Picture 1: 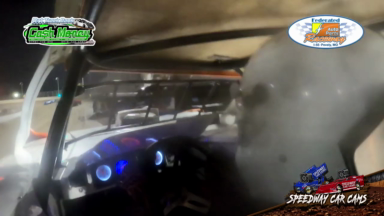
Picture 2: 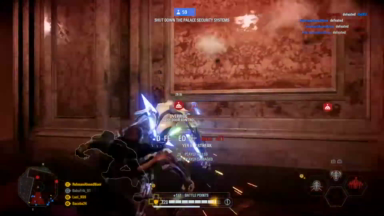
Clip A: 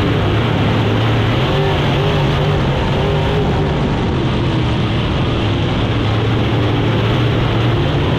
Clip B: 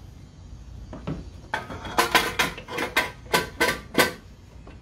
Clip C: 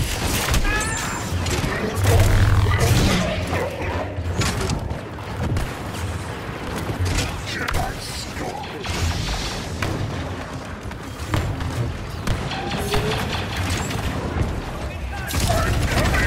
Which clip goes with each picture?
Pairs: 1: A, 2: C